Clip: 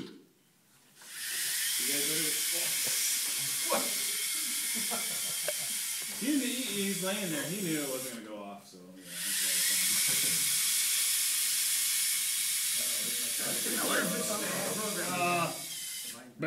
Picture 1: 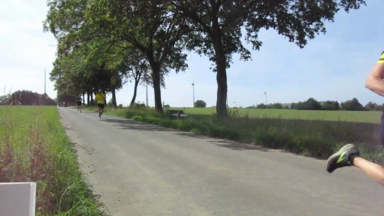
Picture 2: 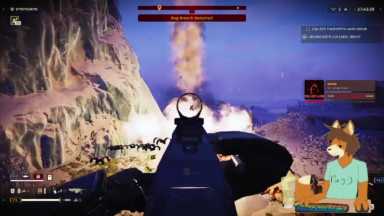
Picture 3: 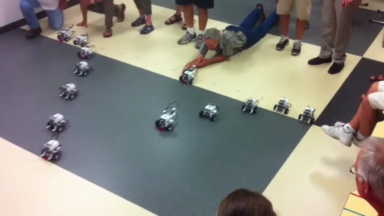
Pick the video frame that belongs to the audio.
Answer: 3